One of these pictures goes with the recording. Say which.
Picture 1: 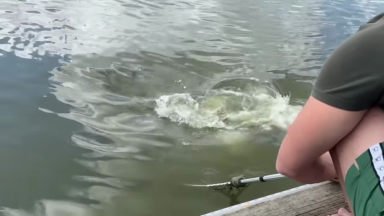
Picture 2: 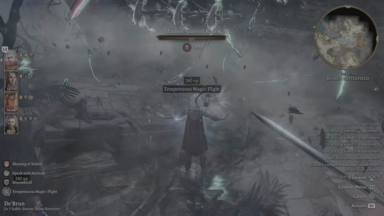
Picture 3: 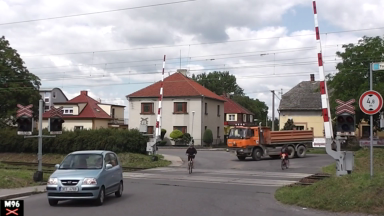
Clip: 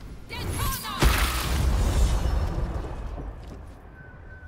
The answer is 2